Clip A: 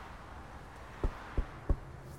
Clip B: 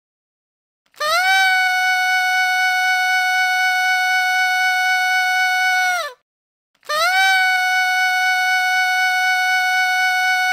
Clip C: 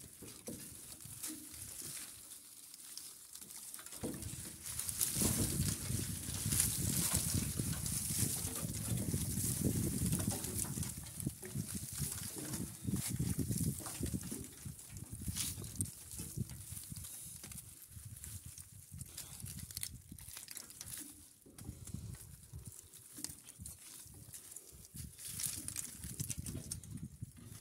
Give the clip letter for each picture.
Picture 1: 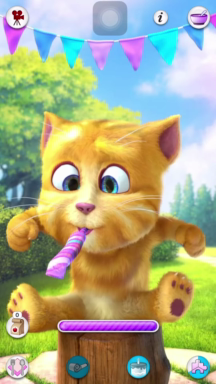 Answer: B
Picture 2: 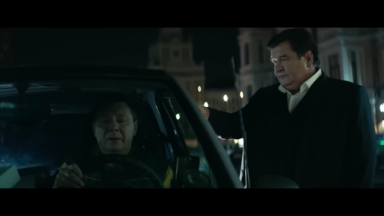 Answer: A